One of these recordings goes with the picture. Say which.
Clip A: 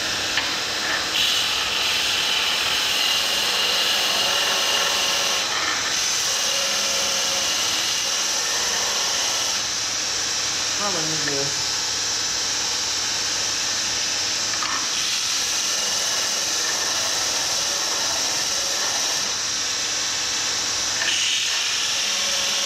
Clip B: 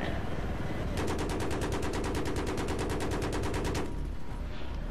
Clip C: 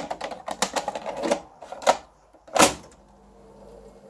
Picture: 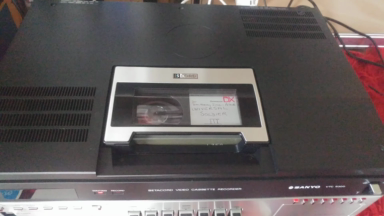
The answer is C